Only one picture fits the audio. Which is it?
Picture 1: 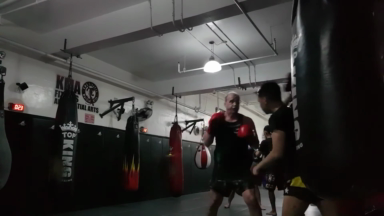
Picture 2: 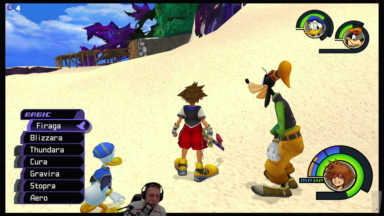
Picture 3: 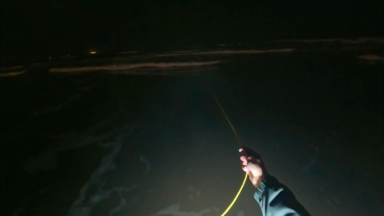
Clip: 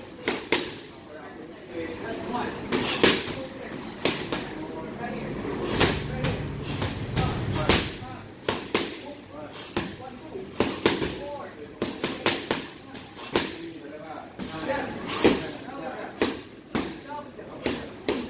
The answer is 1